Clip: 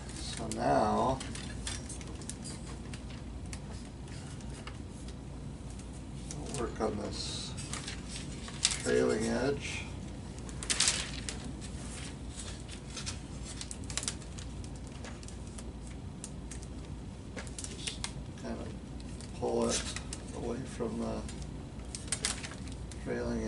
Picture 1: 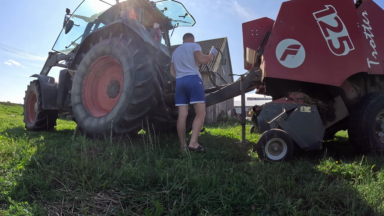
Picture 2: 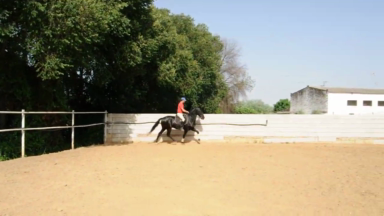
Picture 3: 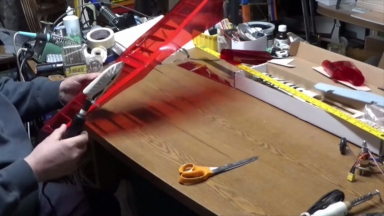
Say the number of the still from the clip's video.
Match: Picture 3